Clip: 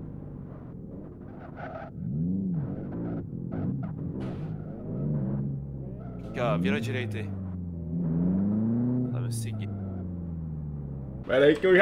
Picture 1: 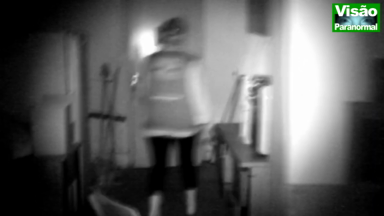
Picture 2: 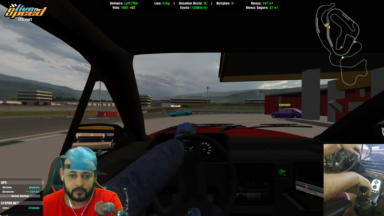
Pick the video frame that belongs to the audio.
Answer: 2